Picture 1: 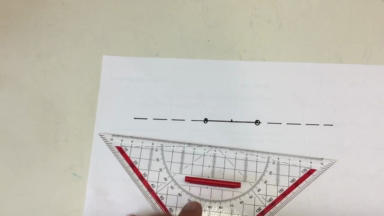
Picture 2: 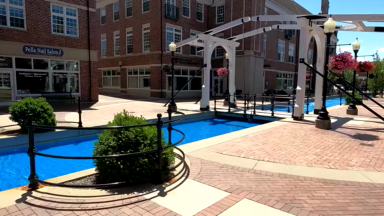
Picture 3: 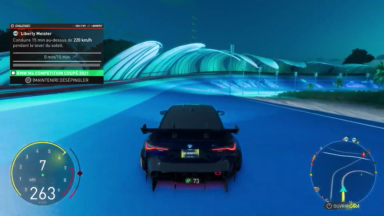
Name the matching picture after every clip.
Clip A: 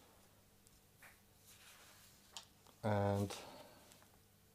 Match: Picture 1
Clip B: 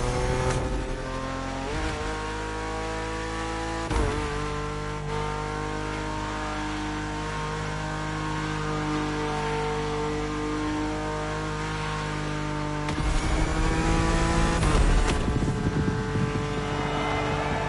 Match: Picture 3